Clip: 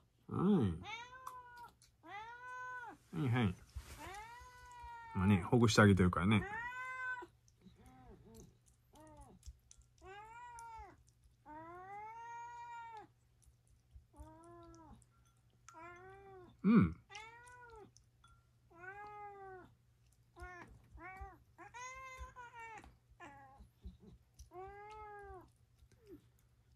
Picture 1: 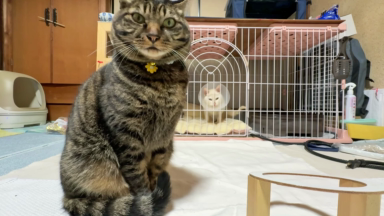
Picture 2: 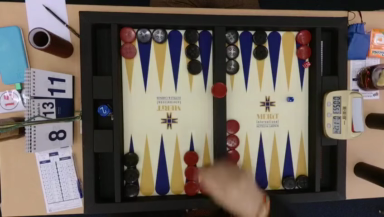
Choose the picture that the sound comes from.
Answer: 1